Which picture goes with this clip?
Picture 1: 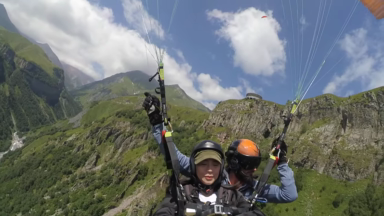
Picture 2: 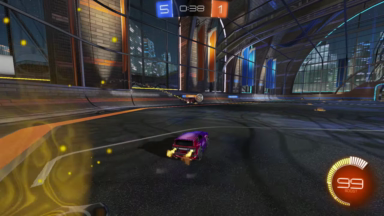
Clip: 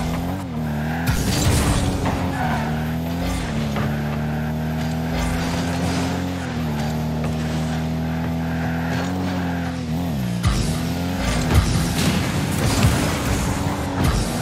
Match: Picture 2